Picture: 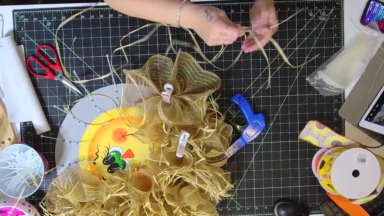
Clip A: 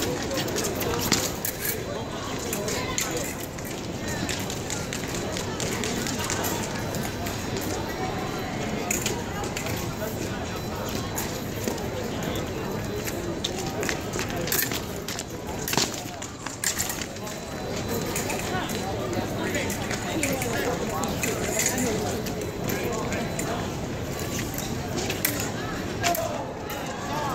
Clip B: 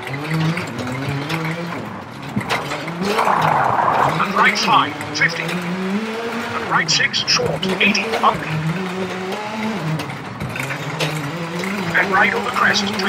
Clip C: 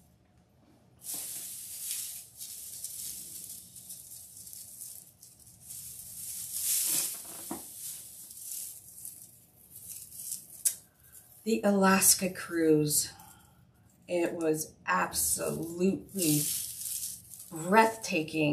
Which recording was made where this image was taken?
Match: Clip C